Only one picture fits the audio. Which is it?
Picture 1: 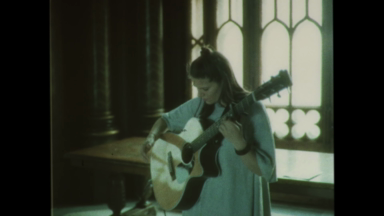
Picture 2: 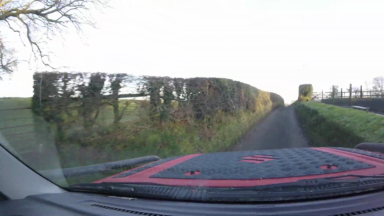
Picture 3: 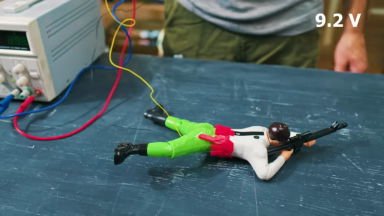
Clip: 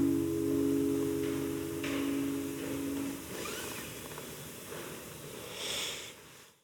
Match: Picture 1